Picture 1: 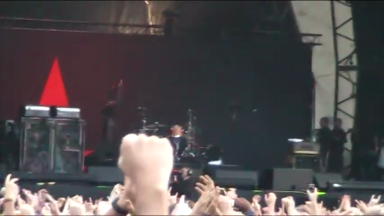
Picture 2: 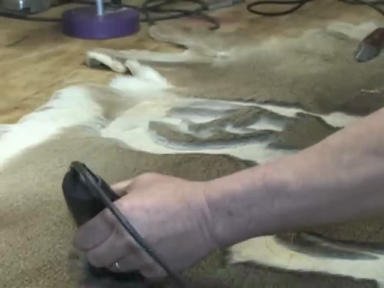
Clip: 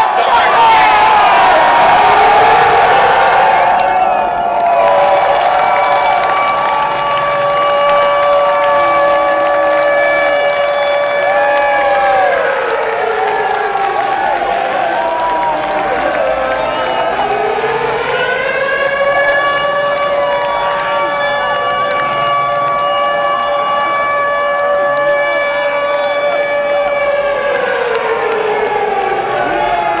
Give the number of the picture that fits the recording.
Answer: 1